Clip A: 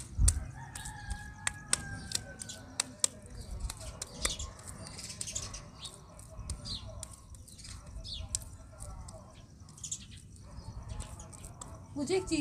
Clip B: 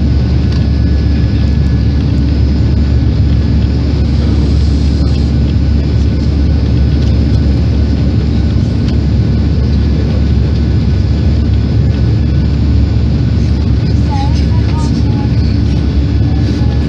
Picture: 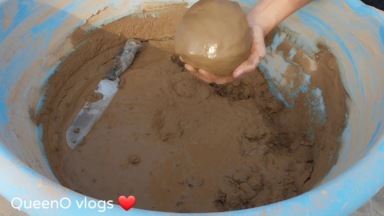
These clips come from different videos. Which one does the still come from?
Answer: A